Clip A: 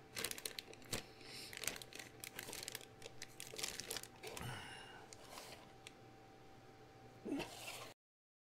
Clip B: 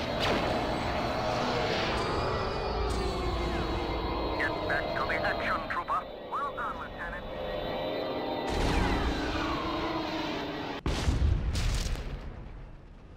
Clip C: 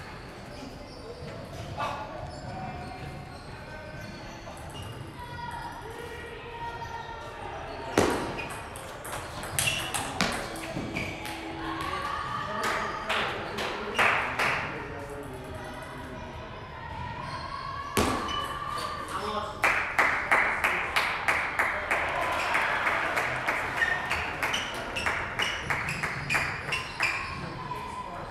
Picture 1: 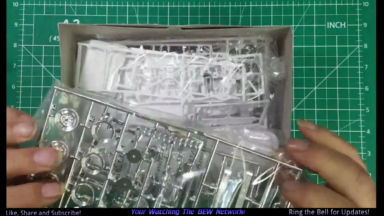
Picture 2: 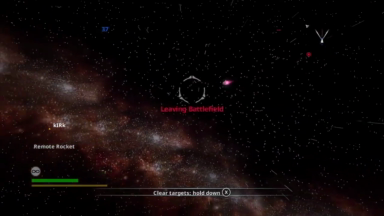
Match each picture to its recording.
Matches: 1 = A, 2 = B